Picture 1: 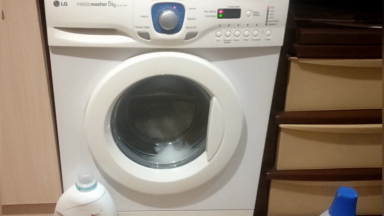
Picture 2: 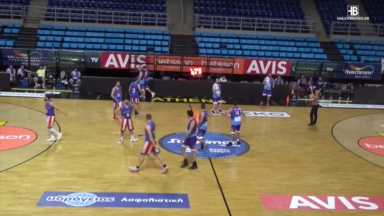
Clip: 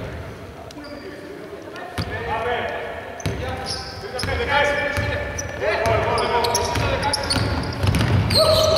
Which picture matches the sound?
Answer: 2